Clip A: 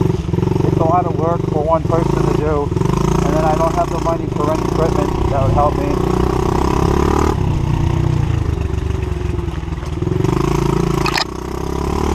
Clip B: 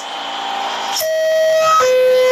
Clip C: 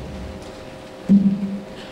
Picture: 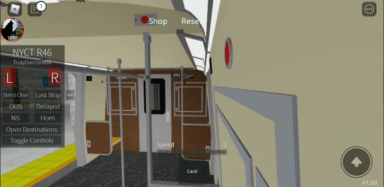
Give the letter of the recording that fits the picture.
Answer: B